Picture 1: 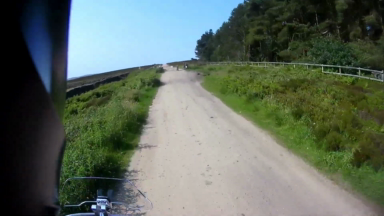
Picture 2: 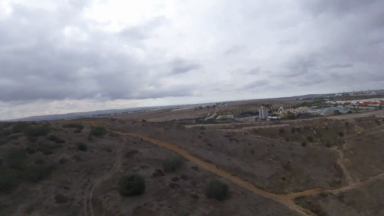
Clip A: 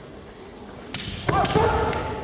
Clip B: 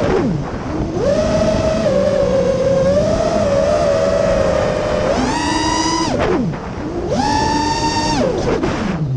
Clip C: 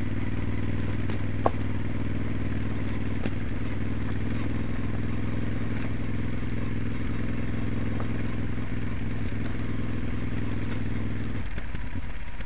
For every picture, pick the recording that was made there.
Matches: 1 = C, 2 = B